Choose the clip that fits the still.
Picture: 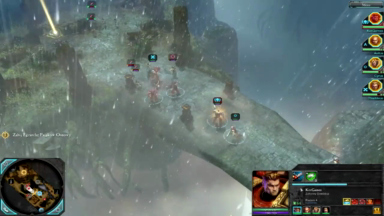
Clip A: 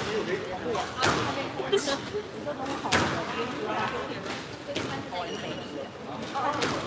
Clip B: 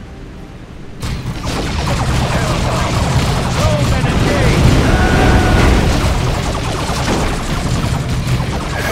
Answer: B